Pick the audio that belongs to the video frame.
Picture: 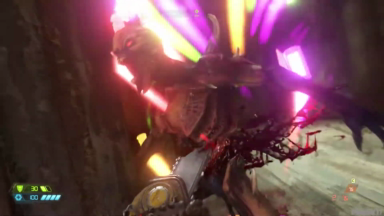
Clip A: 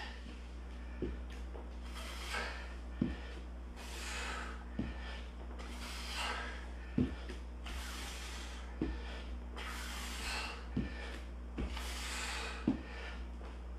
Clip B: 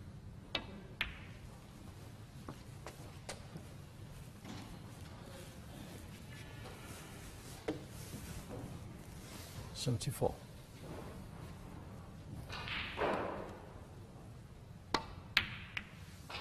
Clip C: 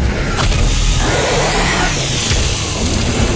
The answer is C